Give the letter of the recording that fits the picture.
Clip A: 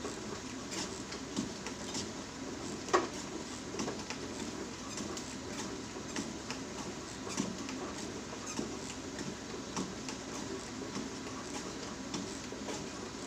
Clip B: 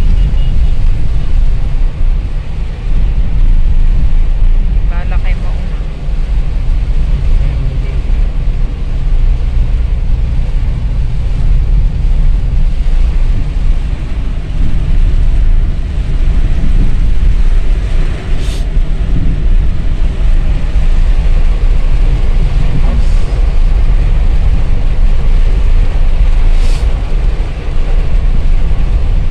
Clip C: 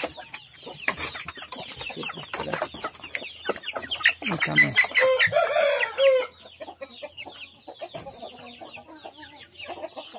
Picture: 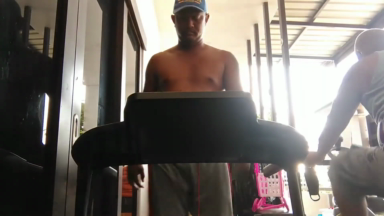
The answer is A